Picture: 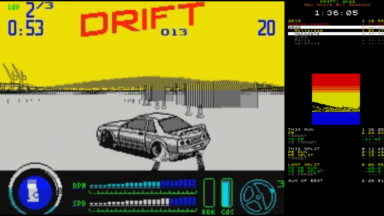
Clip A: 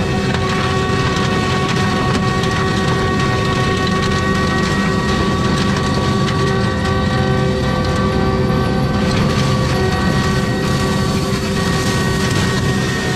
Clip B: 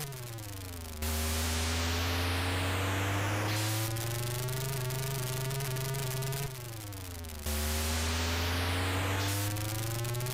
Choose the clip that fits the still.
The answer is B